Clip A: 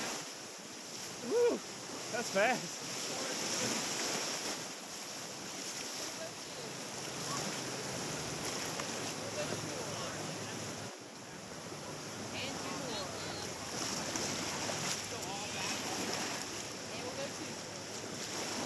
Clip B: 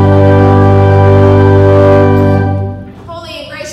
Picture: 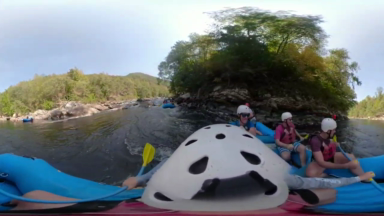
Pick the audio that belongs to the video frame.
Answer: A